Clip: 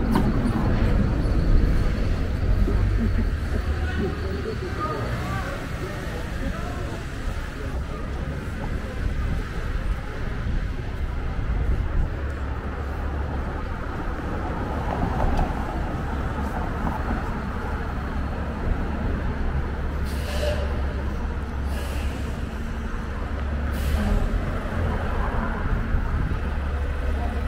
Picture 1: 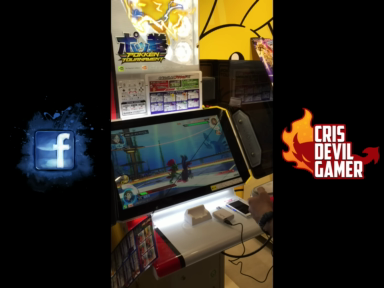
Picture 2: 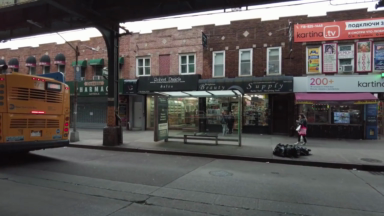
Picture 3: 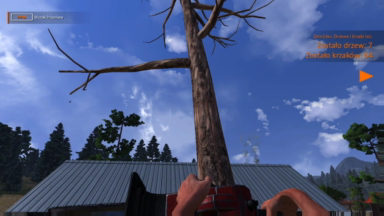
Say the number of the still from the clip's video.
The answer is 2